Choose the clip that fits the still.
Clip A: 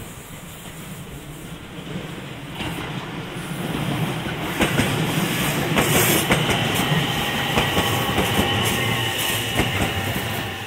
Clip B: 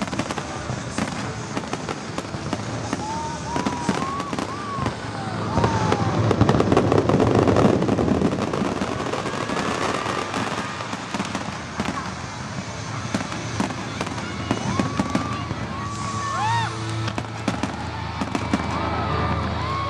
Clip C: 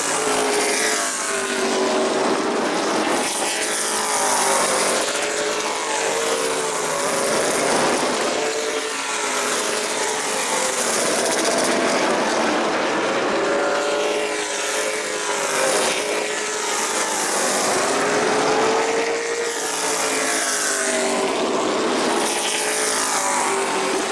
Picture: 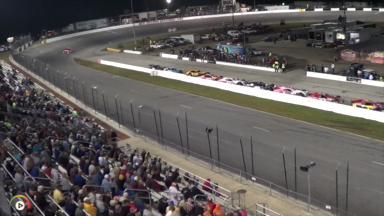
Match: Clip C